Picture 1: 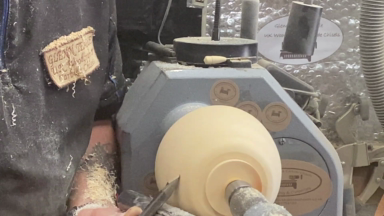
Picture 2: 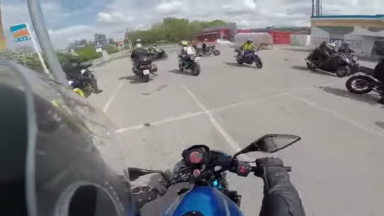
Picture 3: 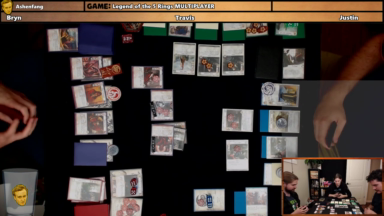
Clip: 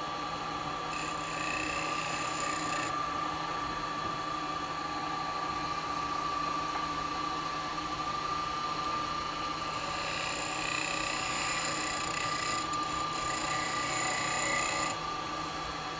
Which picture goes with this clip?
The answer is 1